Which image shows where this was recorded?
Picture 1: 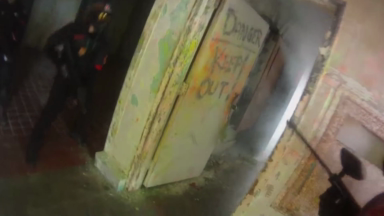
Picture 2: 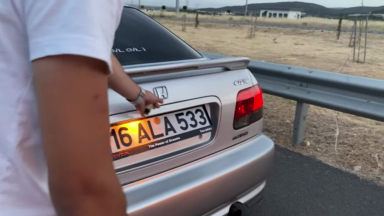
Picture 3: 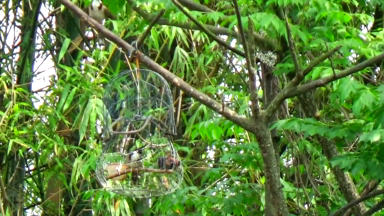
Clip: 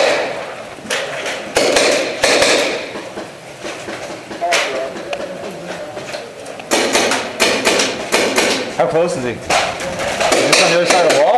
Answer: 1